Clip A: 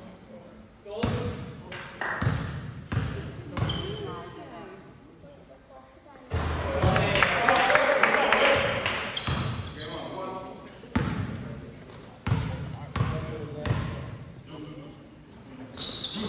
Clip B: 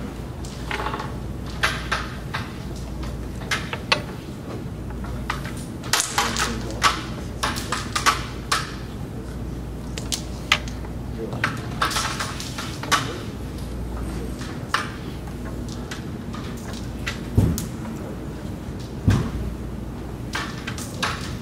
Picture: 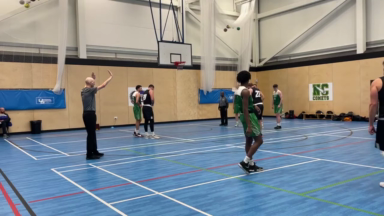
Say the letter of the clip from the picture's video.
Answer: A